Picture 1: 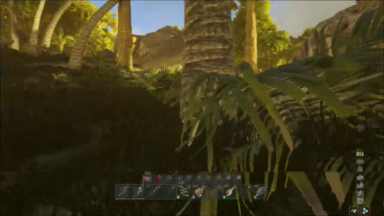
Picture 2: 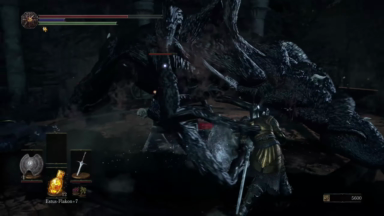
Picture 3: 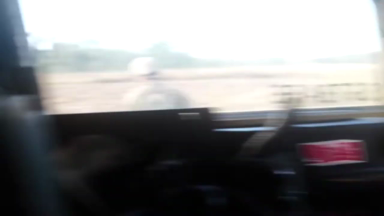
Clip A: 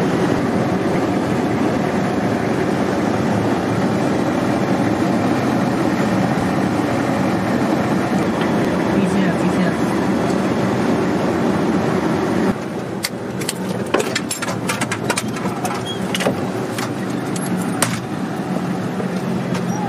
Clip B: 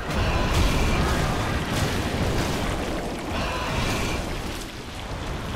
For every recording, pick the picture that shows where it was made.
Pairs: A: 3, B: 2